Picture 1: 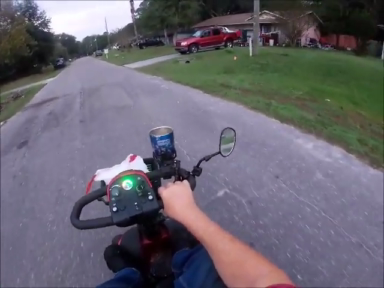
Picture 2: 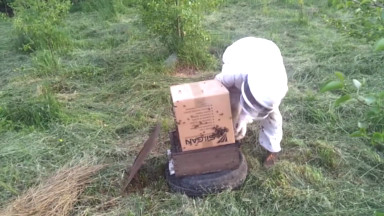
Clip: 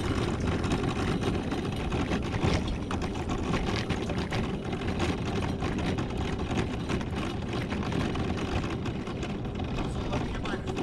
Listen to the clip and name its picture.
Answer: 1